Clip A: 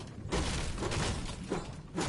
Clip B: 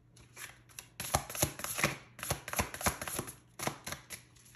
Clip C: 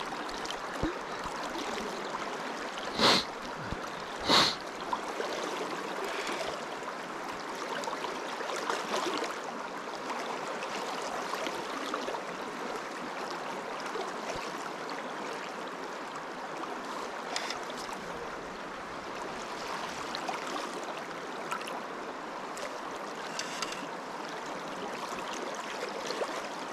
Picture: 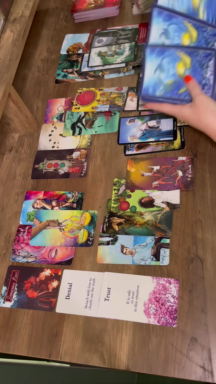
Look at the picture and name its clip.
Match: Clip B